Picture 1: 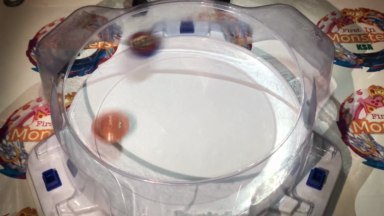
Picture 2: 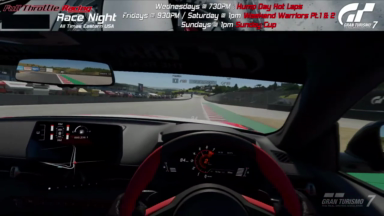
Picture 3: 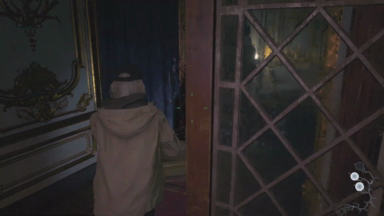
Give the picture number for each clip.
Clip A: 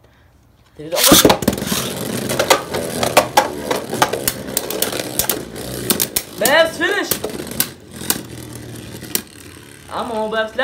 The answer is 1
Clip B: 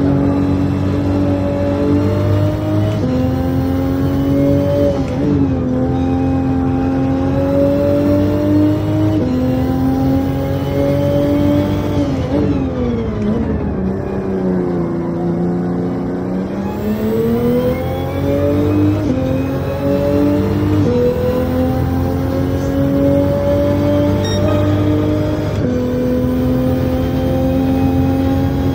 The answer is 2